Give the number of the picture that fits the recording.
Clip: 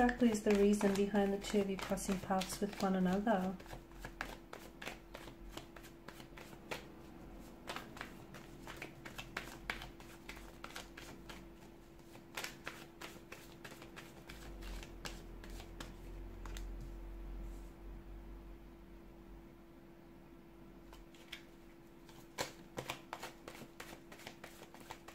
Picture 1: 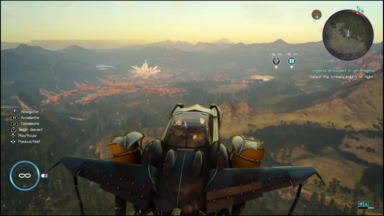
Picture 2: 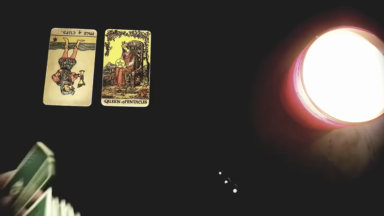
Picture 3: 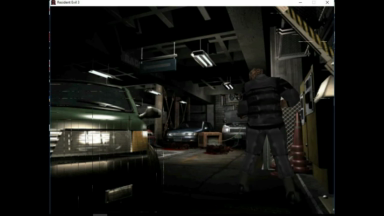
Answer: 2